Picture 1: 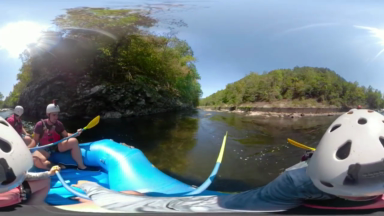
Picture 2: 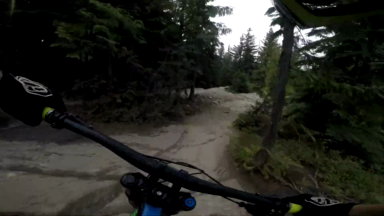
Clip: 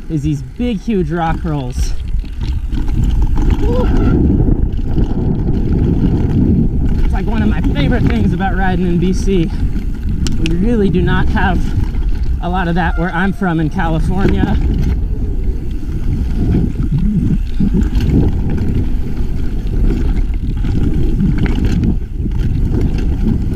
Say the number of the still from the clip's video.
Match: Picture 2